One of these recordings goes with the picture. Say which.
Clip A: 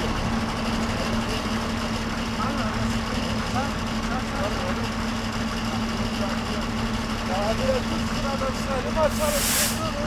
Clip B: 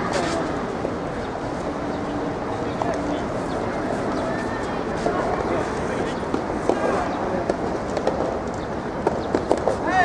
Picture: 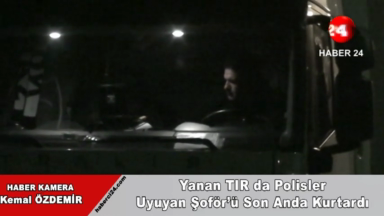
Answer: A